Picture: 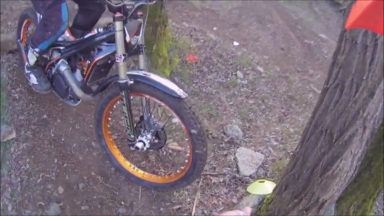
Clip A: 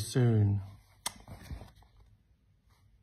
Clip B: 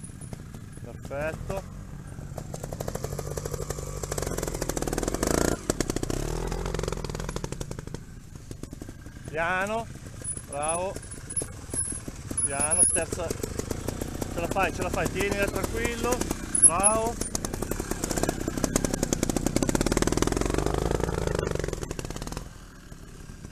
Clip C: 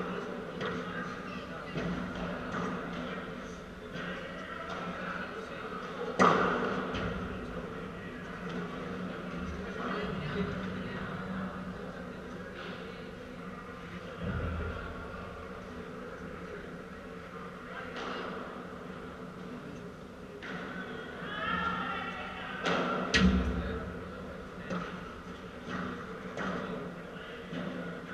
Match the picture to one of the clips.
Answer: B